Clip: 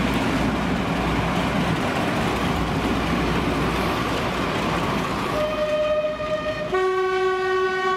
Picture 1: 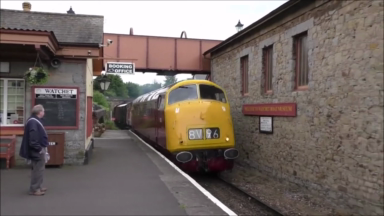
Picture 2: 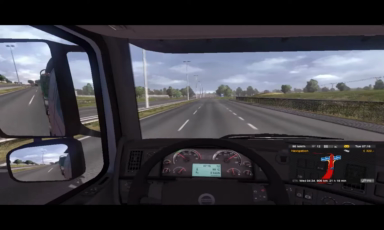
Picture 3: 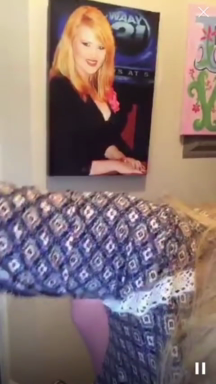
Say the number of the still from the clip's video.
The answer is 1